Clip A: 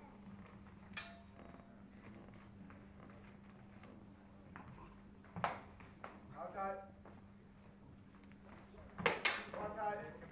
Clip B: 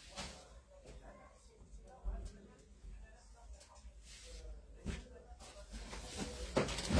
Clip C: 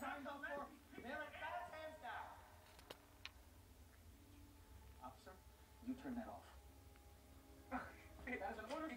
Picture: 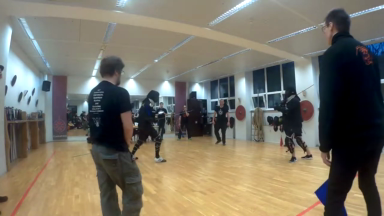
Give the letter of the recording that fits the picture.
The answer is A